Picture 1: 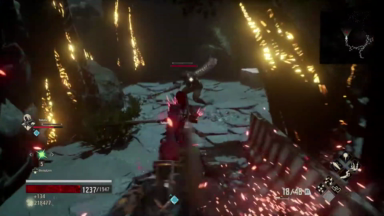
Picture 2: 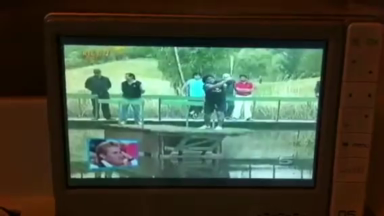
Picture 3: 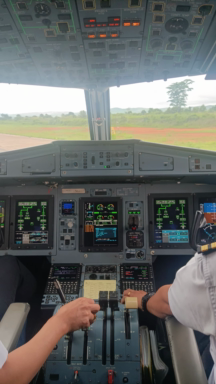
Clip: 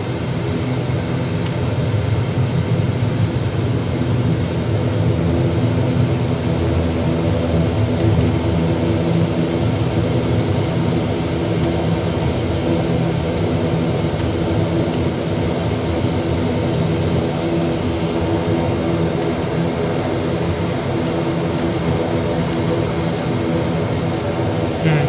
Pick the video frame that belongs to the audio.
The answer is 3